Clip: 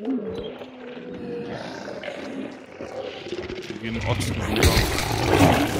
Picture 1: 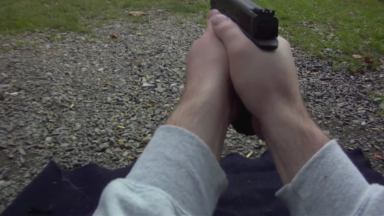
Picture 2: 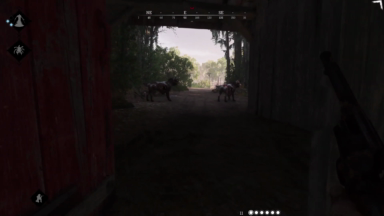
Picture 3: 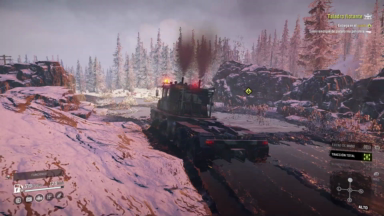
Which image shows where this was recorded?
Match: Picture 2